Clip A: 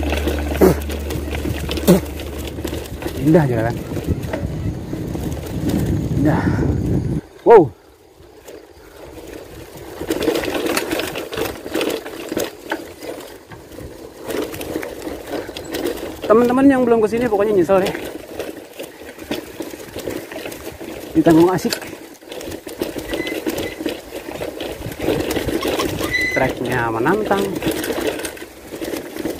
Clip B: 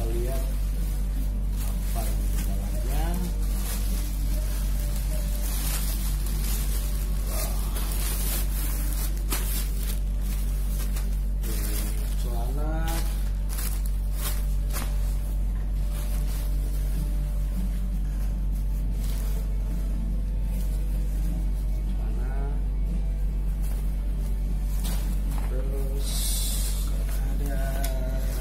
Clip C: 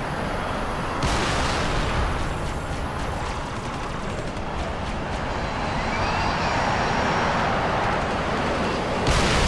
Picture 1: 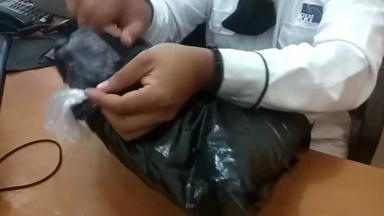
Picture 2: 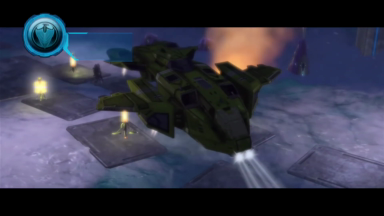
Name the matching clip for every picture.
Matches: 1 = B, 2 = C